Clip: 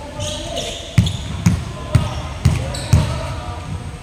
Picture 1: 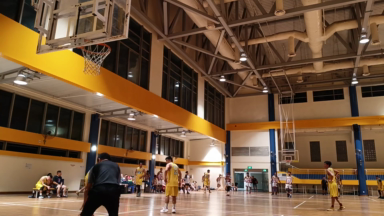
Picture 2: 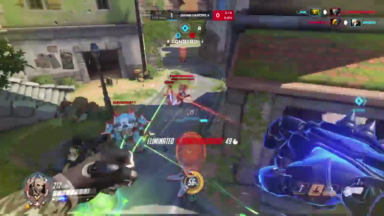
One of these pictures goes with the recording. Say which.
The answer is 1